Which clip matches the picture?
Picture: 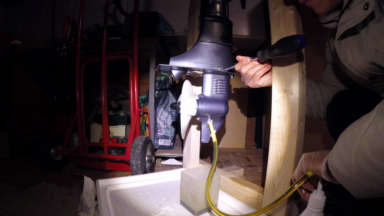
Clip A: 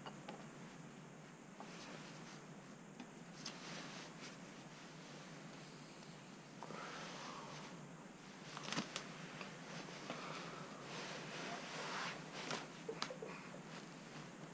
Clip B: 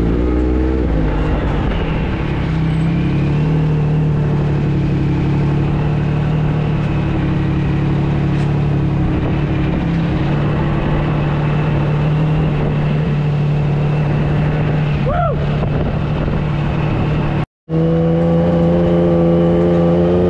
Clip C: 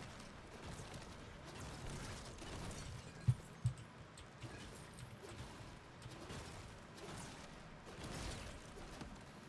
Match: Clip A